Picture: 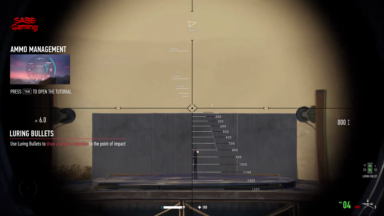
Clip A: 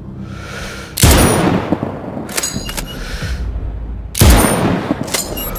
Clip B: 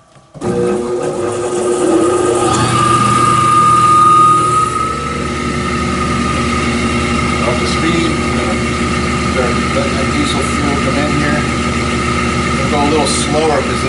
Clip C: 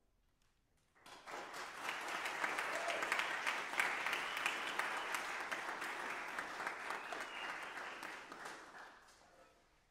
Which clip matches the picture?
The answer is A